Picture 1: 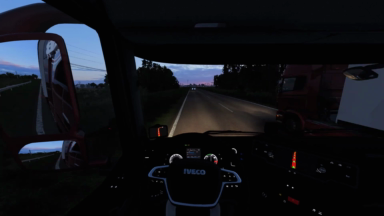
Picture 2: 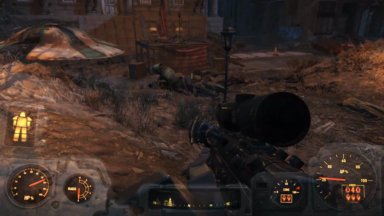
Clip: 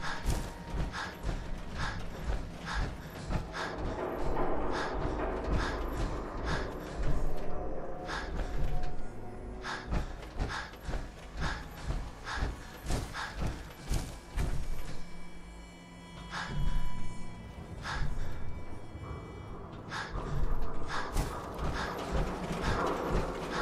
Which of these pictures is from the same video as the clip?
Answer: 2